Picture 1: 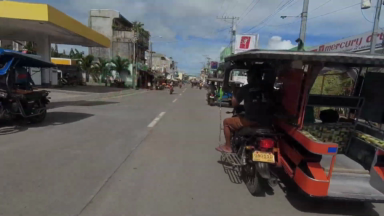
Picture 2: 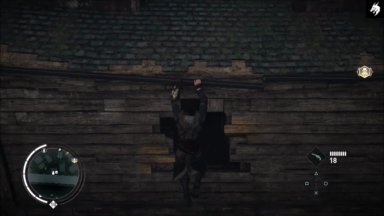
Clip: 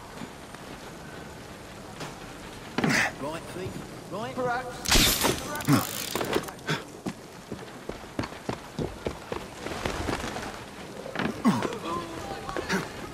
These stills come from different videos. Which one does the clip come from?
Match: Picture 2